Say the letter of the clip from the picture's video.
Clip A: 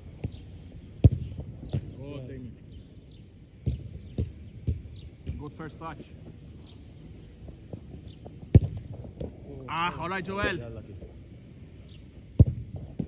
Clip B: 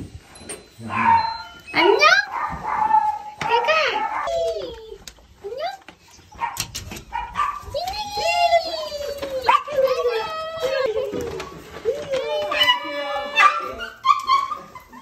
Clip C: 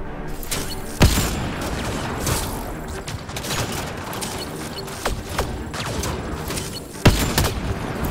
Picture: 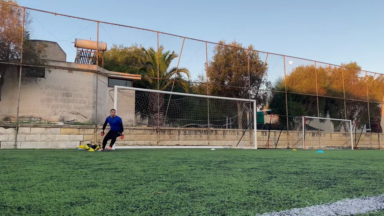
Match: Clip A